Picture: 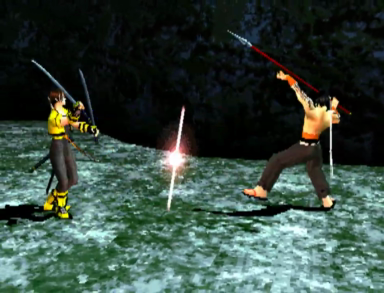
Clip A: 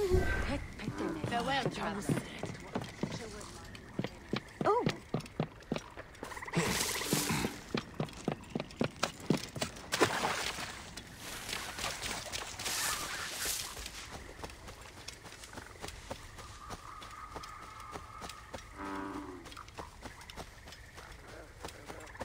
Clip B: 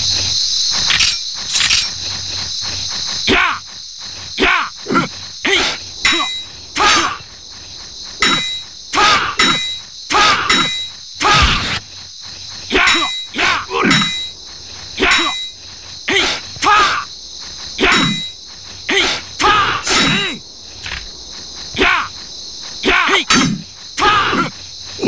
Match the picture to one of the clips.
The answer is B